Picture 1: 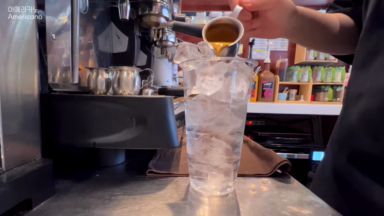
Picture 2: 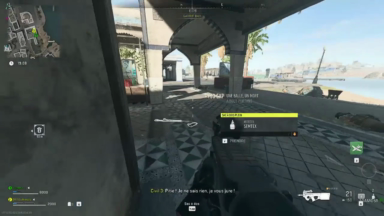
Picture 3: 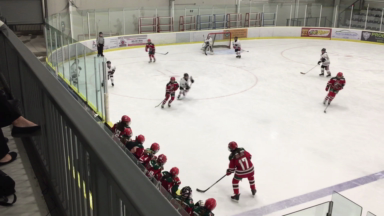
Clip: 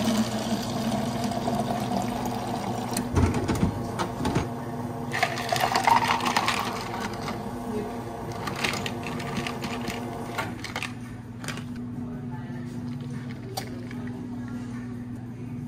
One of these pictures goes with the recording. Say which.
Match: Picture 1